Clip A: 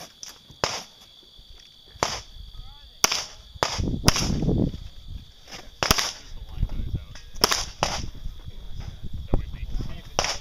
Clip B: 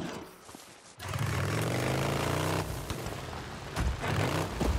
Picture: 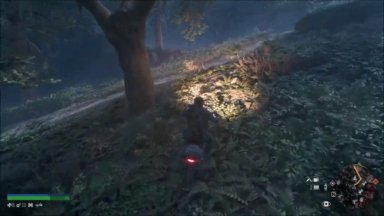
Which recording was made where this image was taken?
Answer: B